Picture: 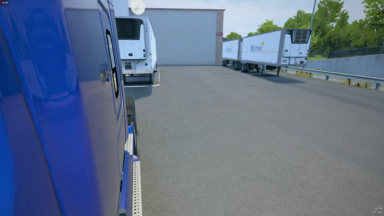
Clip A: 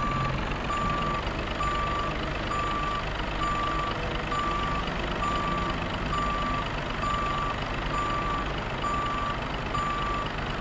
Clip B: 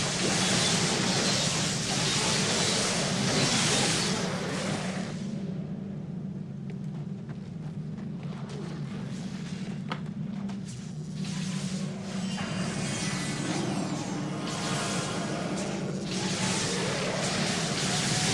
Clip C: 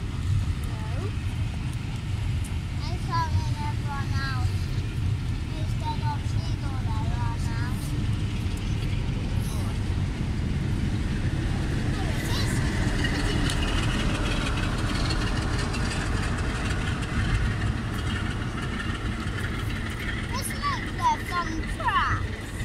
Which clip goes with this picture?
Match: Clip A